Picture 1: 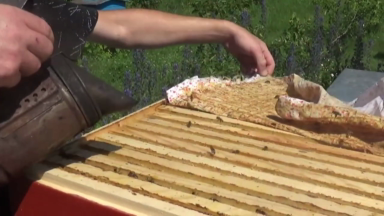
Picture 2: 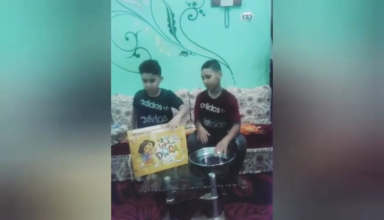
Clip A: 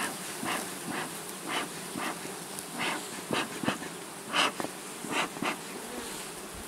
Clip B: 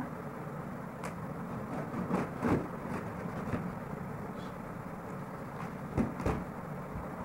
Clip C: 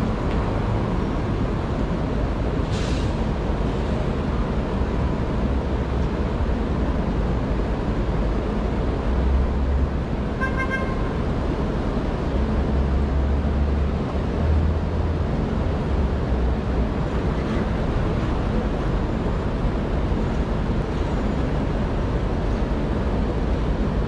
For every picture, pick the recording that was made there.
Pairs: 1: A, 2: B